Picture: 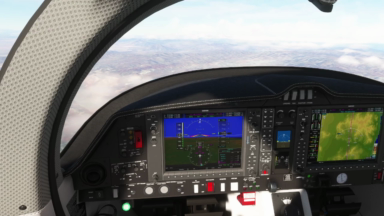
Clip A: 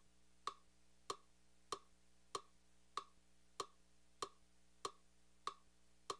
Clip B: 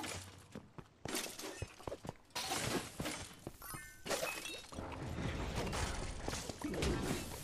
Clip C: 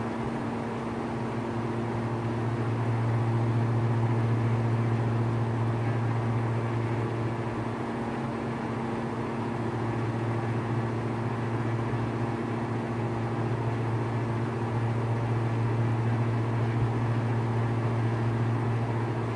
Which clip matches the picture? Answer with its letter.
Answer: C